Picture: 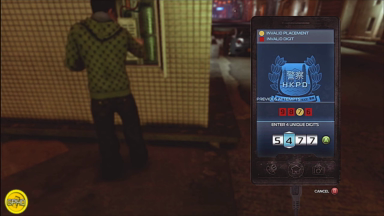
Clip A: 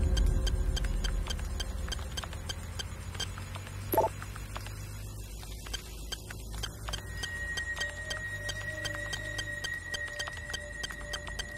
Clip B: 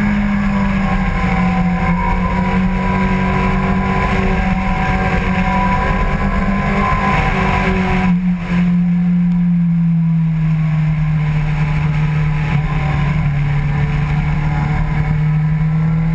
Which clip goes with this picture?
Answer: A